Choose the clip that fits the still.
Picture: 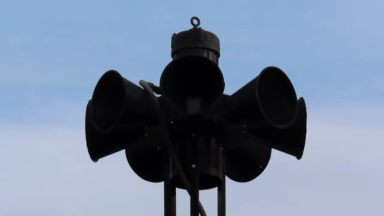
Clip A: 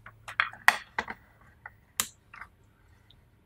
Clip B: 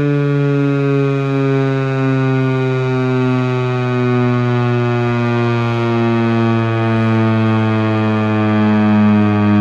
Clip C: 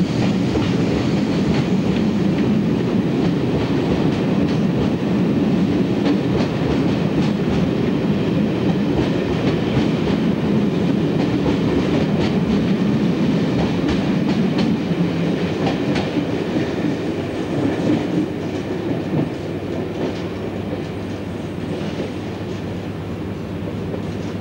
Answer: B